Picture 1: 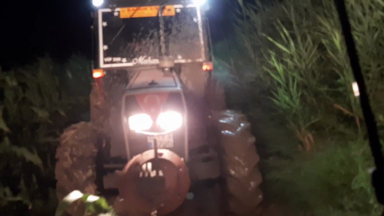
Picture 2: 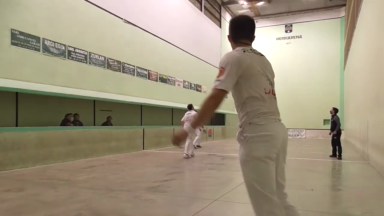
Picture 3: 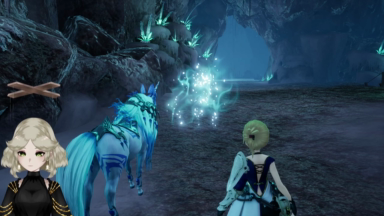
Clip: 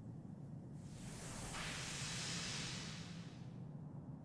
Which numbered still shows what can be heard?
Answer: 3